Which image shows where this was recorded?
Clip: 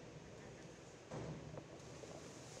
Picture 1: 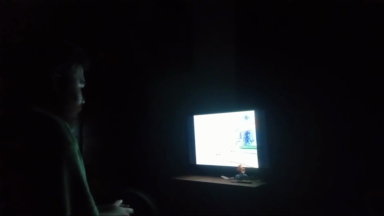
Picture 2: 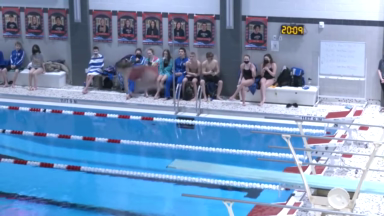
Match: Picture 2